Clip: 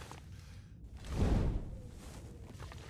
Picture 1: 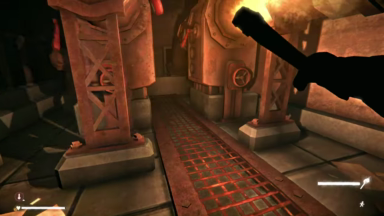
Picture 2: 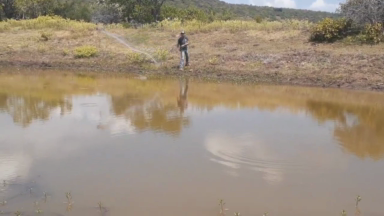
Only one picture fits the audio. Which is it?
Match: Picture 1